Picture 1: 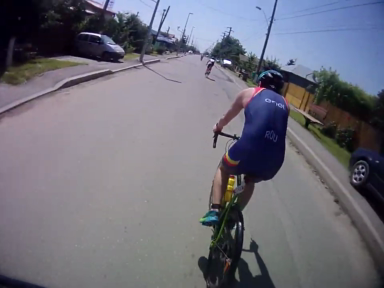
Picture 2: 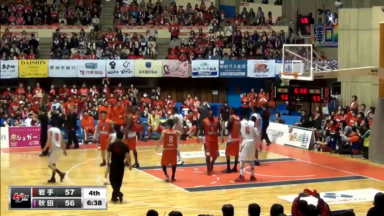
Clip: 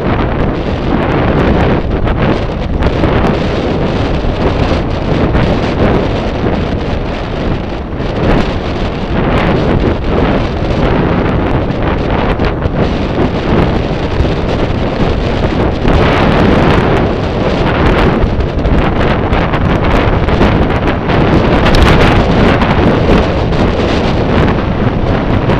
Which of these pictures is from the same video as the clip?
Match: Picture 1